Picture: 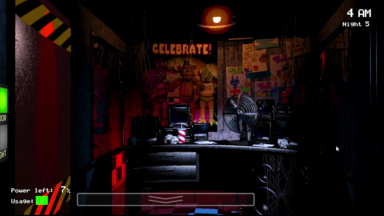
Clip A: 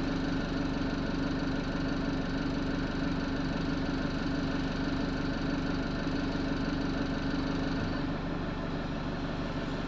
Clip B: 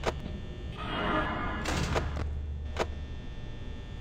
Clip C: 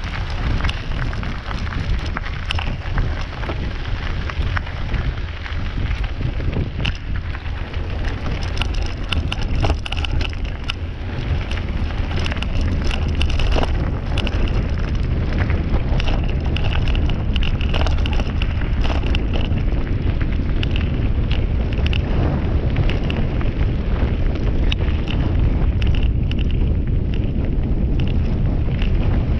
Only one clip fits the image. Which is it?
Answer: B